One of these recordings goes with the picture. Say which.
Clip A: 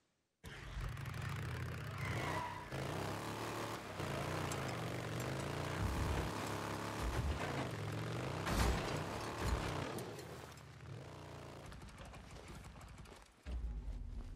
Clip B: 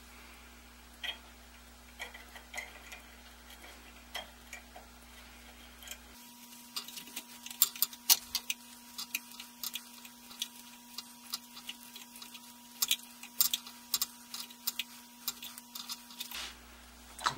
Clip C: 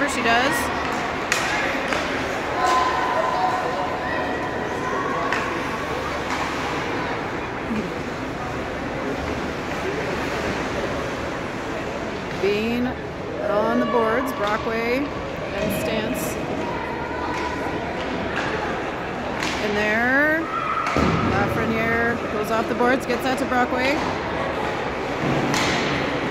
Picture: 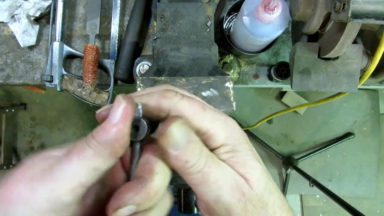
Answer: B